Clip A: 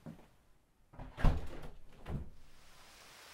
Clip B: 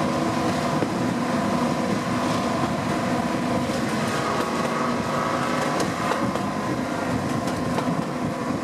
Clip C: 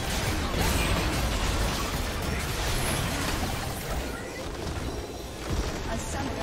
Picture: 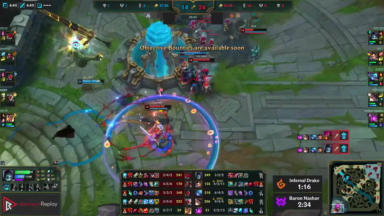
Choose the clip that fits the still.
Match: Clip C